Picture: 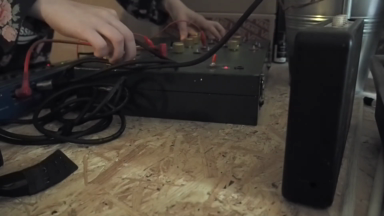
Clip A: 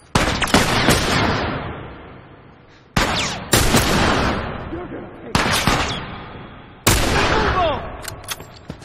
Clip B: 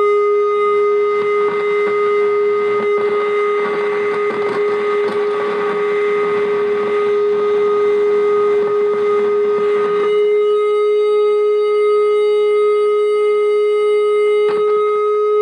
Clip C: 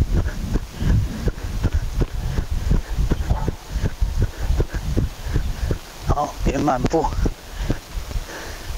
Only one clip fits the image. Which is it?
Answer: B